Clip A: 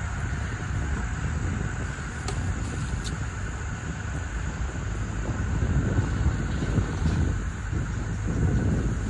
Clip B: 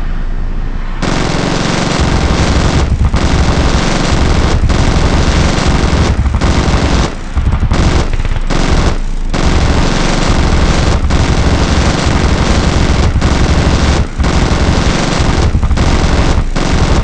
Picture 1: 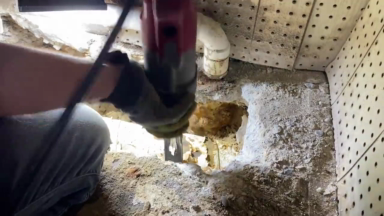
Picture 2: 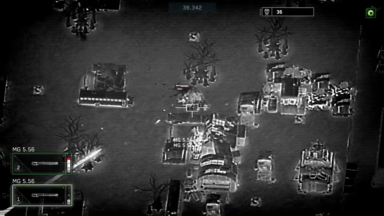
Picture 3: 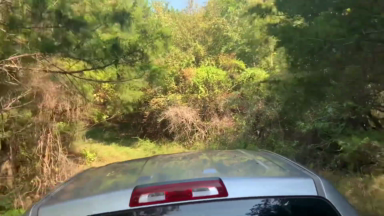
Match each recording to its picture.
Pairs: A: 3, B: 2